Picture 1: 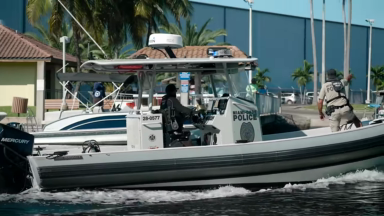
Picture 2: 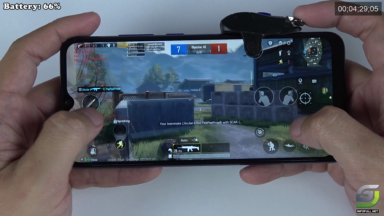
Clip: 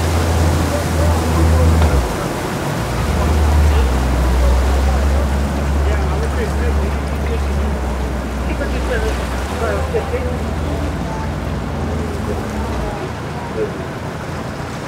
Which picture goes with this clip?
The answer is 1